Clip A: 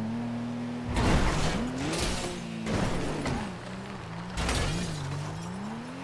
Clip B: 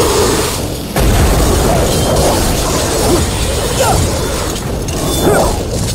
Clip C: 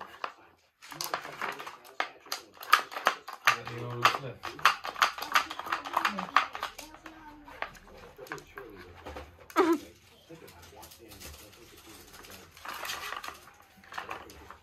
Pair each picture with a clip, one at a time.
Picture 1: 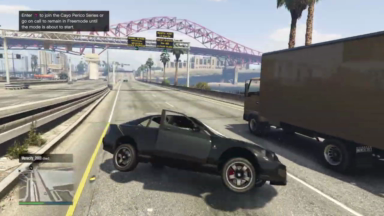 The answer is A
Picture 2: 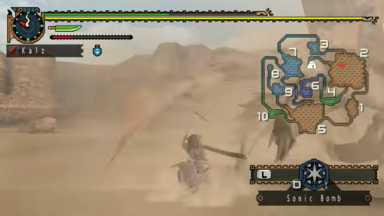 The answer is B